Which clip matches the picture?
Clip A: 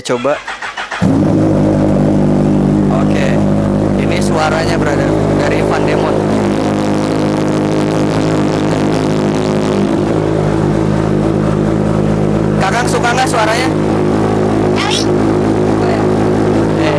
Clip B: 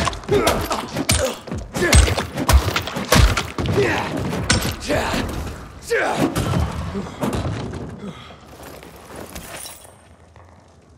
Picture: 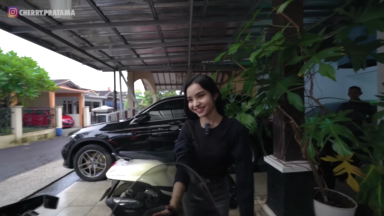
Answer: A